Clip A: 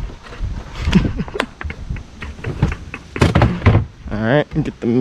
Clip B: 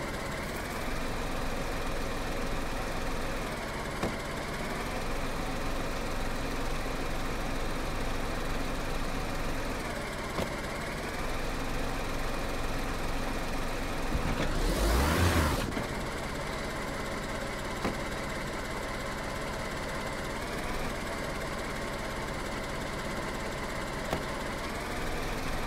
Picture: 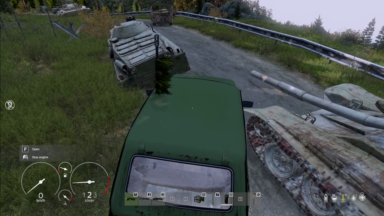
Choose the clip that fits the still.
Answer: B